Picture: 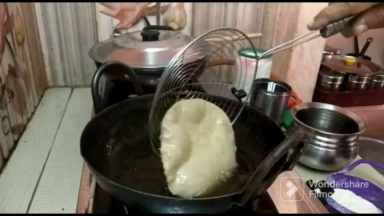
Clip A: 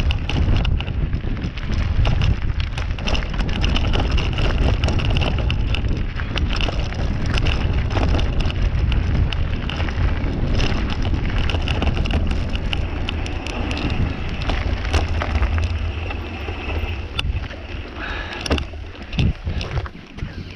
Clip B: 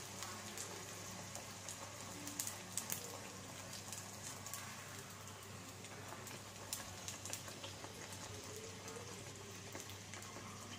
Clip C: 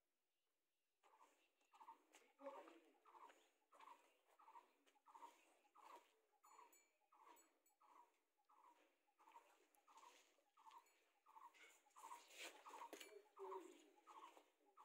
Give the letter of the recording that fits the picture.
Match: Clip B